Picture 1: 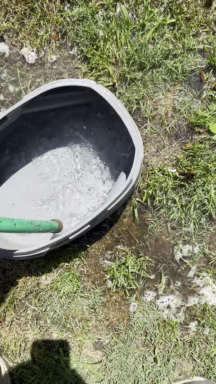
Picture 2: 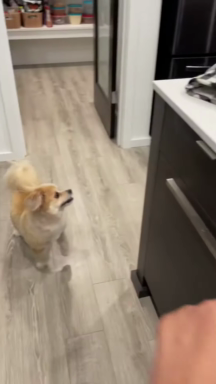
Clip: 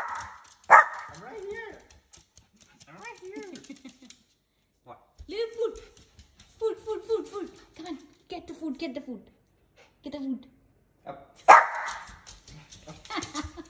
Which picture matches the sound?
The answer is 2